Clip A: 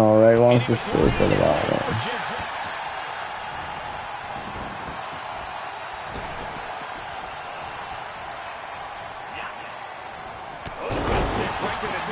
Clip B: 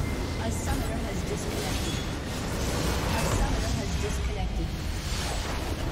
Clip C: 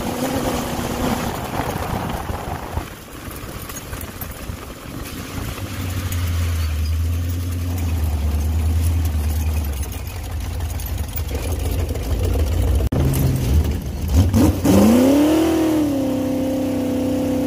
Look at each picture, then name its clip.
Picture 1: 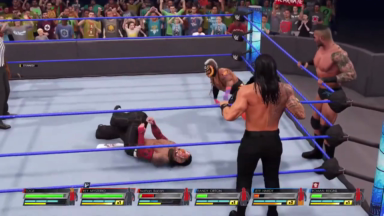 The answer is A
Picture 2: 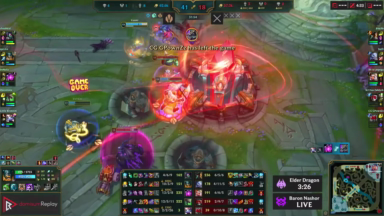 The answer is B